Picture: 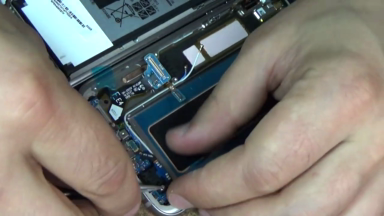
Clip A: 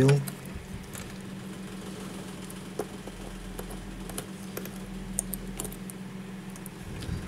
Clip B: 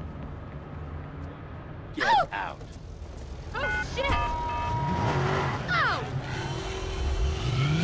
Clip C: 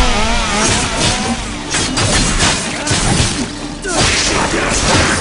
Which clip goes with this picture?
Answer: A